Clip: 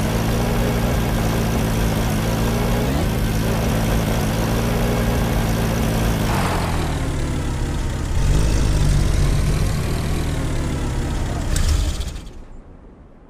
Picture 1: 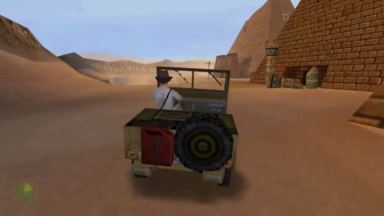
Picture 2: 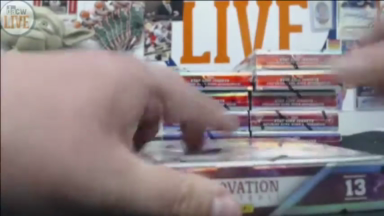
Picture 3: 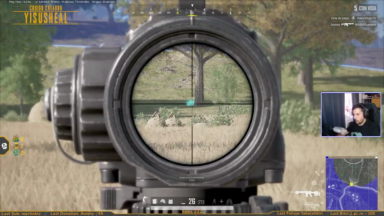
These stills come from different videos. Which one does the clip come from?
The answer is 1